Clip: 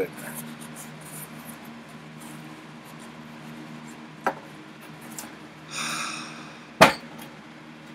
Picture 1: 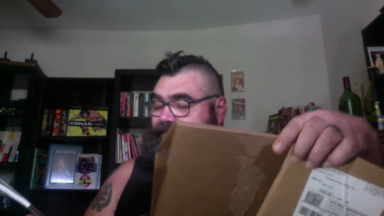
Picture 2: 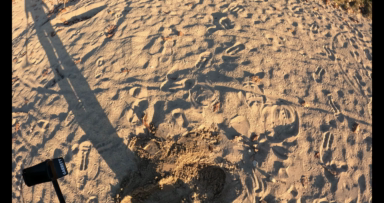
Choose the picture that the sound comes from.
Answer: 1